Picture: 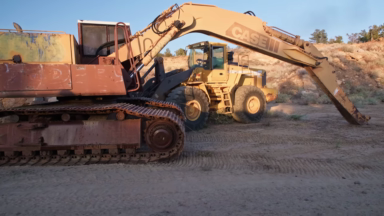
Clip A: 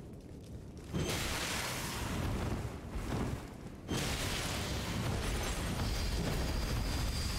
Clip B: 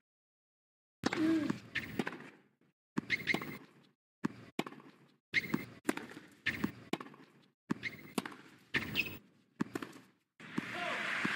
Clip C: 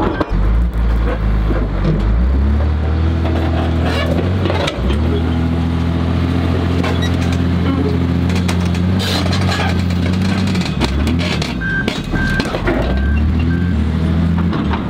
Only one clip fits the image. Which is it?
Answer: C